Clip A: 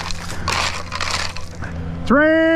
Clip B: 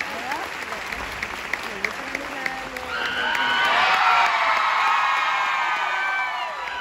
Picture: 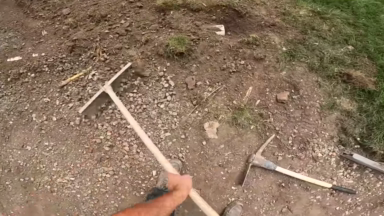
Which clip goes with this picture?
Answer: A